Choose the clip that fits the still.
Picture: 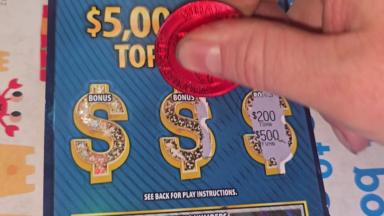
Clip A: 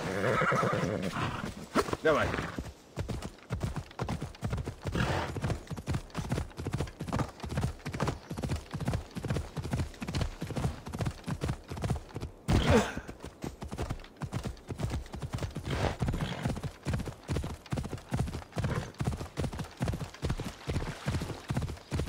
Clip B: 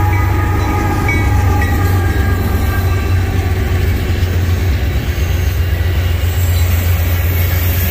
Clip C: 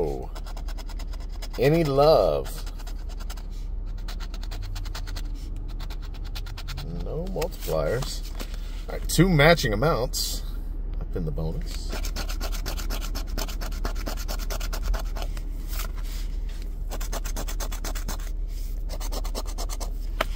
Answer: C